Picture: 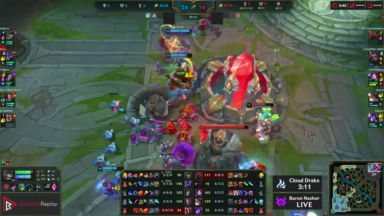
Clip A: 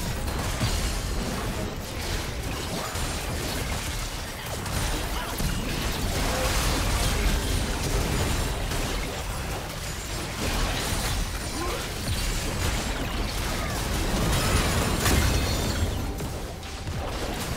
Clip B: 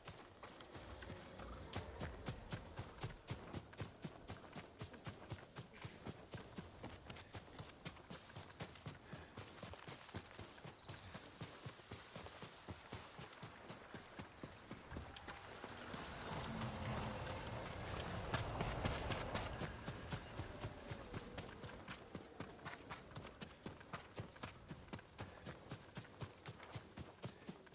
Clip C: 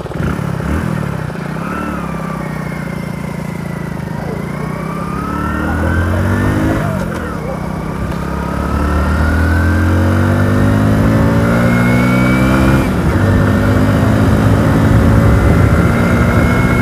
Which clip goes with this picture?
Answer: A